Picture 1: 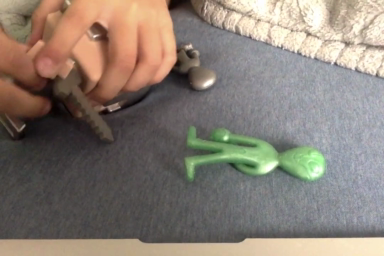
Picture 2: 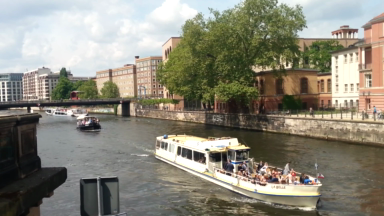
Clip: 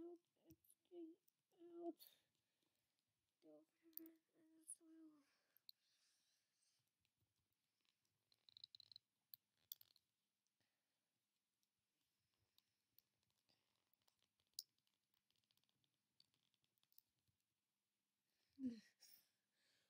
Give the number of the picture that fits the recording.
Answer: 1